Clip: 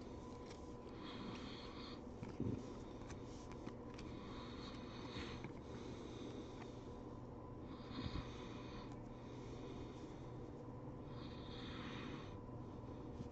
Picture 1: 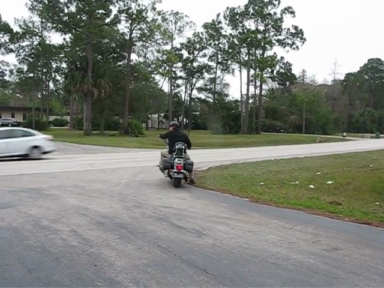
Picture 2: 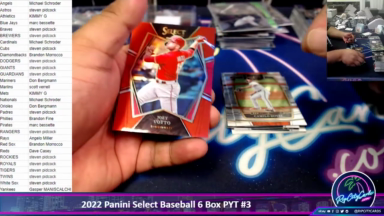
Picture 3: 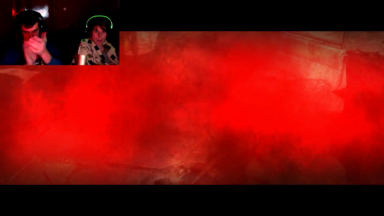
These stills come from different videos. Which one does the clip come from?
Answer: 2